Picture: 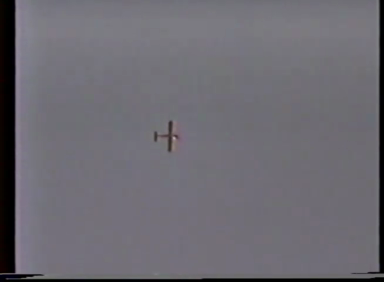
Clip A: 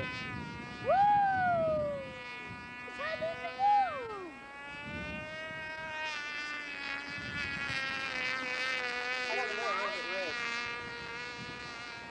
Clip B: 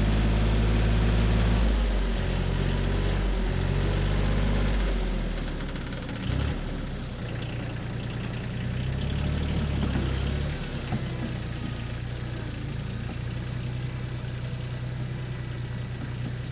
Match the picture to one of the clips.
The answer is A